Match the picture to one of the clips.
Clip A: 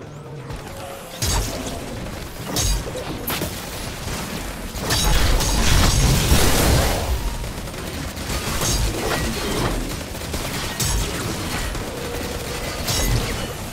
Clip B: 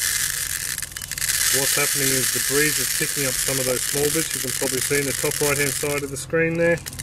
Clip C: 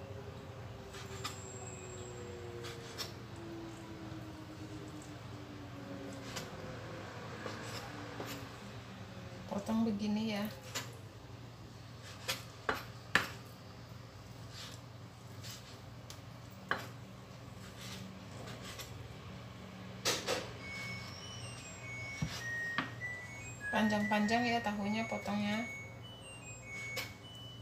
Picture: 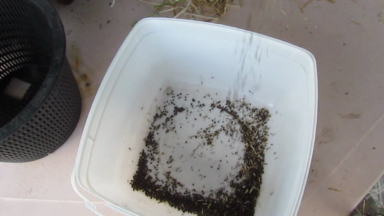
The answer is B